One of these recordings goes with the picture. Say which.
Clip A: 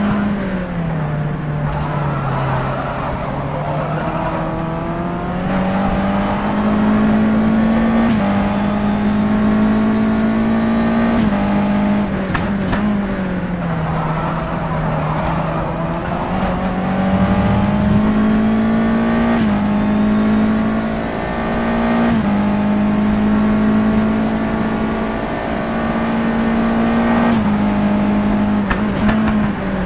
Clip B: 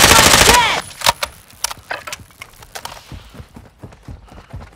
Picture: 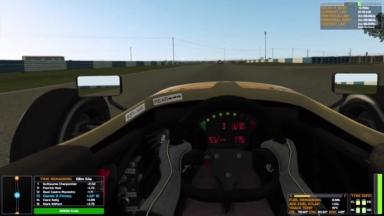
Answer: A